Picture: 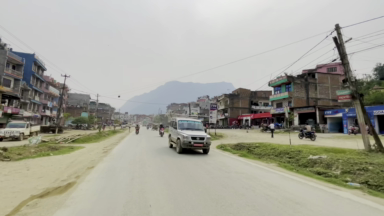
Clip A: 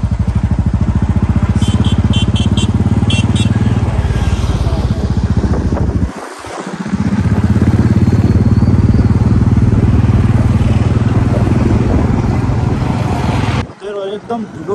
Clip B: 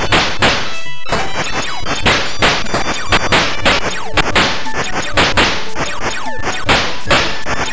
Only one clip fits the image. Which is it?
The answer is A